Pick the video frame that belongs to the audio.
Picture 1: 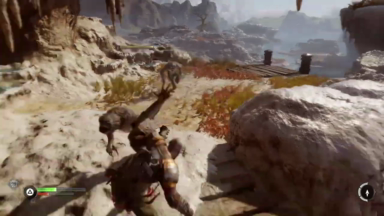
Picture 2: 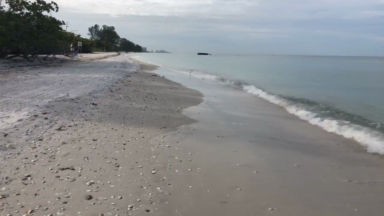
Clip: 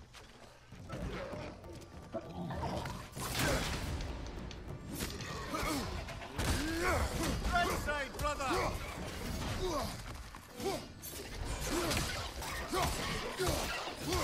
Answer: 1